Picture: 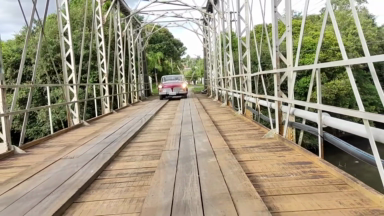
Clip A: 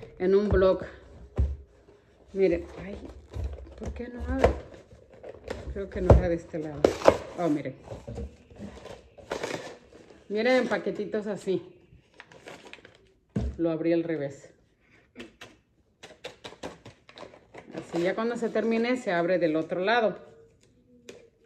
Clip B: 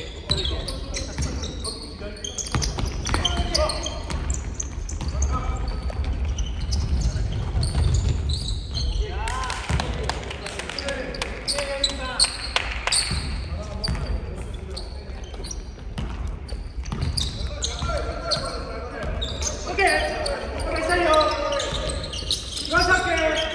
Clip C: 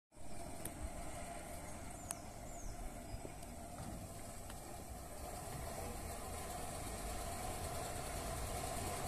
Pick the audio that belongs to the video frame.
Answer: C